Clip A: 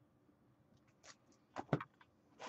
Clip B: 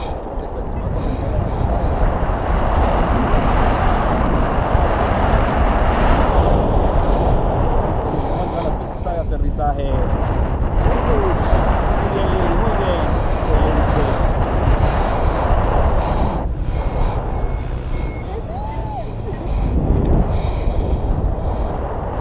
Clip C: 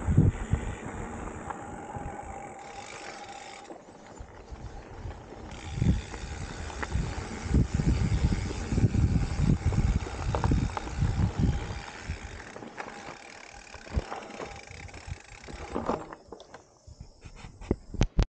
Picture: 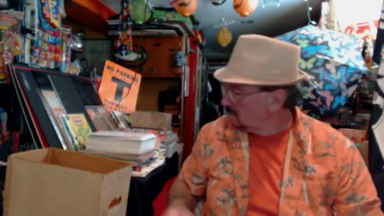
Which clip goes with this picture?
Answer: A